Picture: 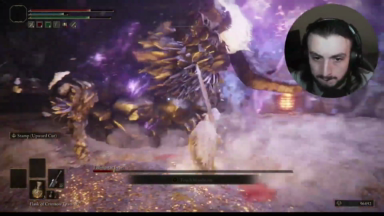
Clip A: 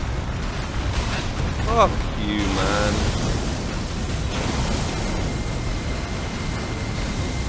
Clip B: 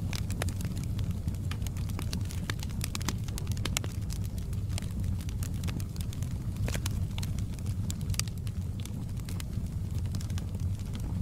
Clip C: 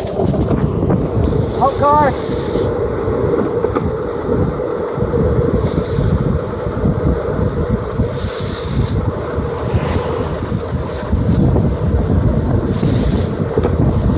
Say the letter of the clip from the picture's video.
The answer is A